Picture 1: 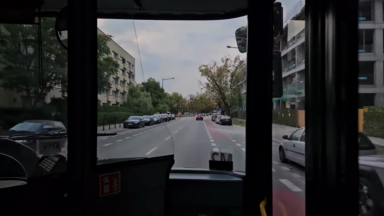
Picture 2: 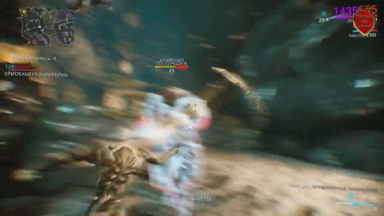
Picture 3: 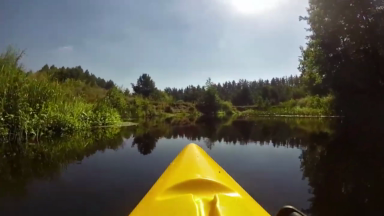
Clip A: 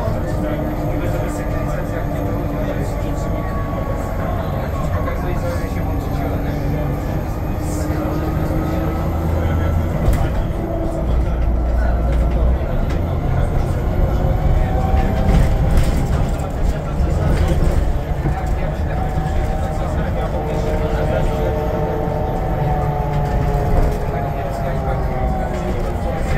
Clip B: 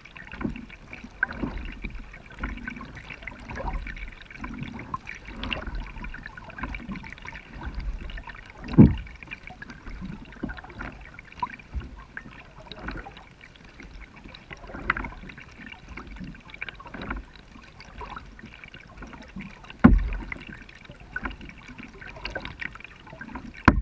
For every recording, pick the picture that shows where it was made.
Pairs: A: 1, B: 3